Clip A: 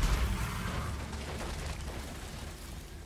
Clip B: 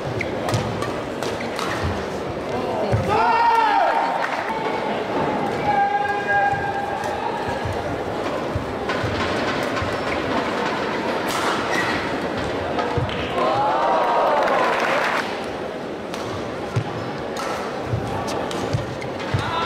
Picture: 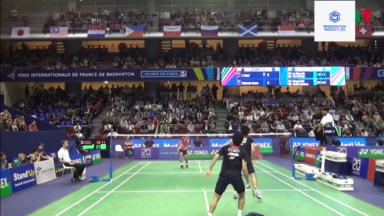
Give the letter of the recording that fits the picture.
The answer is B